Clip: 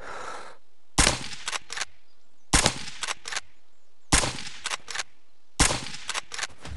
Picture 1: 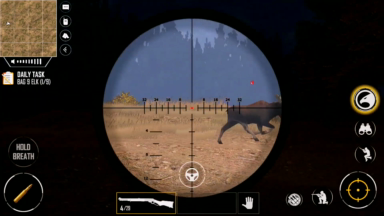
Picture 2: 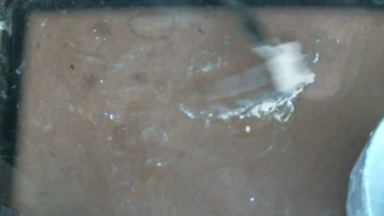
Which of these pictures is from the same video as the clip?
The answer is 1